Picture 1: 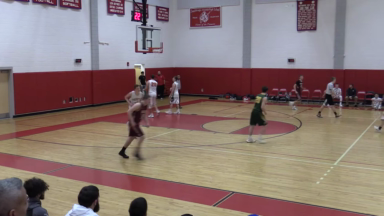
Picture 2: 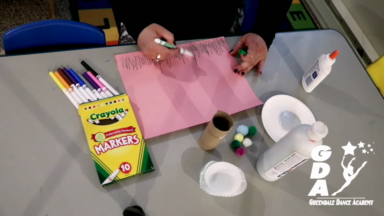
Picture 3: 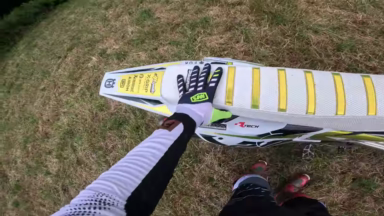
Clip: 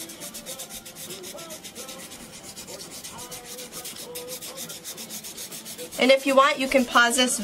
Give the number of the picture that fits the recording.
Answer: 2